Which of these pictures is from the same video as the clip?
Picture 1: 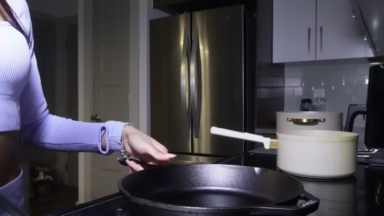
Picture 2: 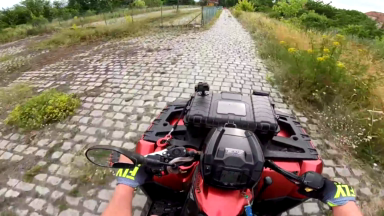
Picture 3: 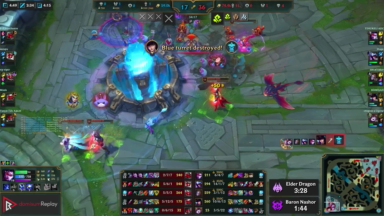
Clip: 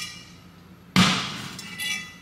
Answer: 1